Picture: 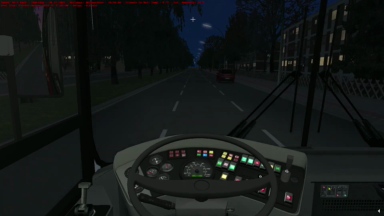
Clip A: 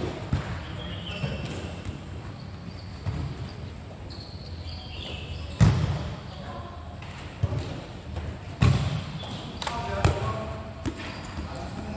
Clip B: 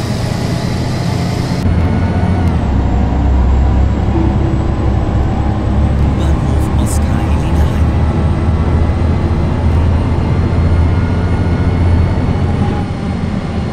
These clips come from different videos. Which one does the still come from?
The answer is B